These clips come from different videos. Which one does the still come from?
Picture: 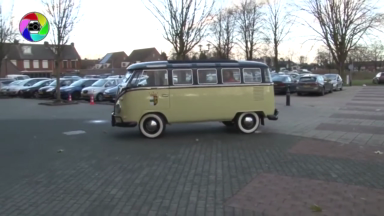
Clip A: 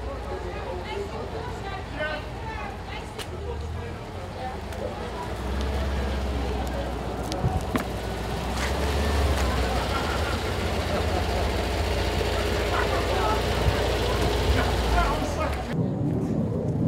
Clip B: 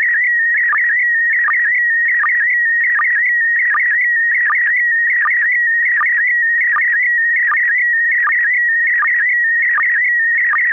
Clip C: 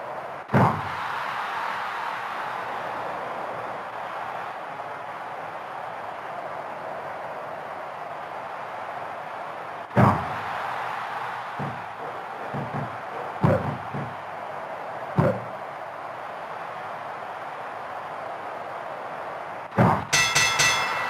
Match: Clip A